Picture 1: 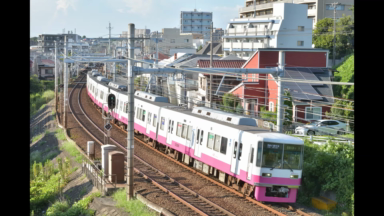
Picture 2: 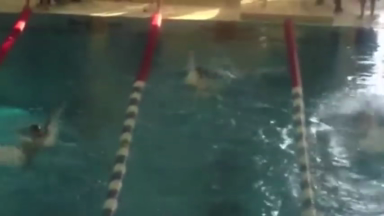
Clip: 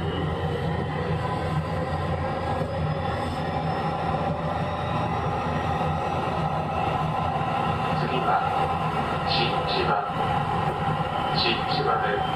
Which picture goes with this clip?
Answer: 1